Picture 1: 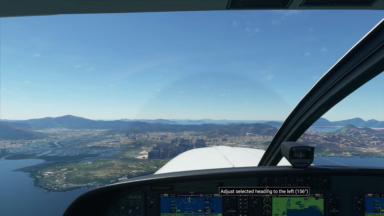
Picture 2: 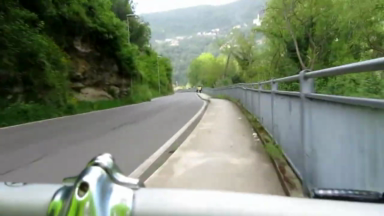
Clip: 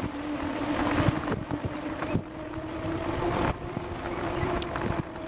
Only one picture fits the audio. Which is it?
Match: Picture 2